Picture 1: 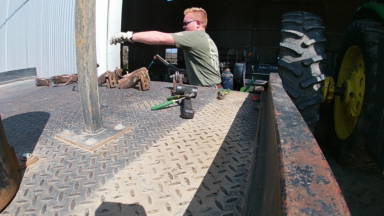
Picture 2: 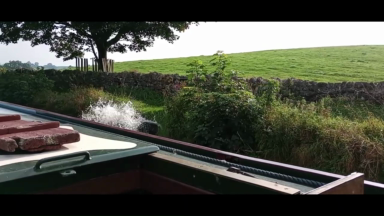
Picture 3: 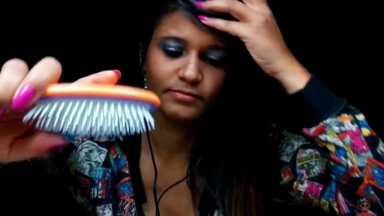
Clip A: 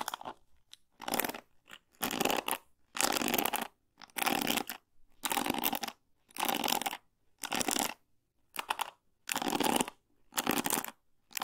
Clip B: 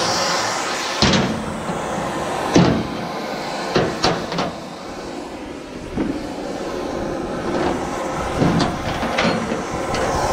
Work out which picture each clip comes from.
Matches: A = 3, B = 1